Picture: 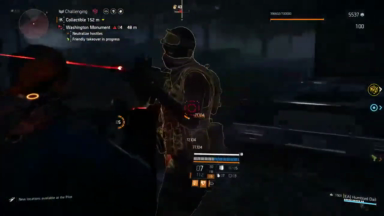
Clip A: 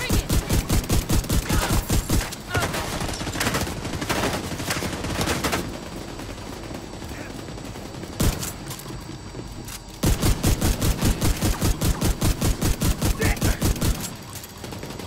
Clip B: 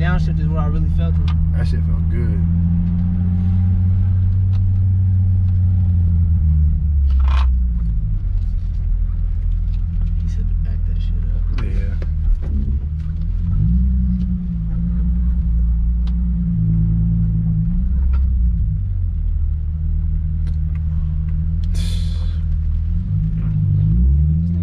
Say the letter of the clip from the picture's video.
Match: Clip A